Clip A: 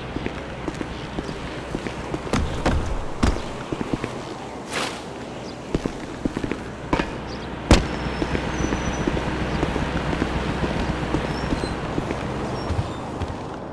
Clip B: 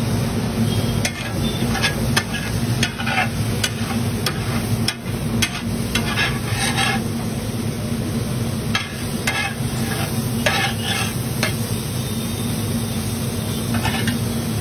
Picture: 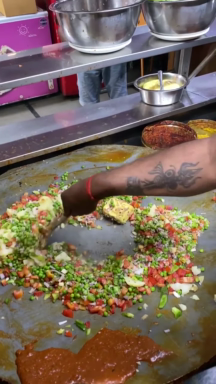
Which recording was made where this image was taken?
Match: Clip B